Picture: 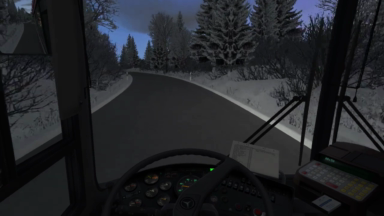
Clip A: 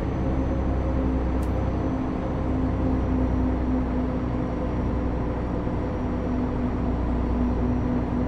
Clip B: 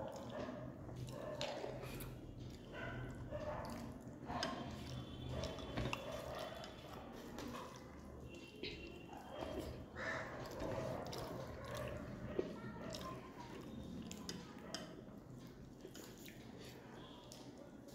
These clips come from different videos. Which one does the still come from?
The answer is A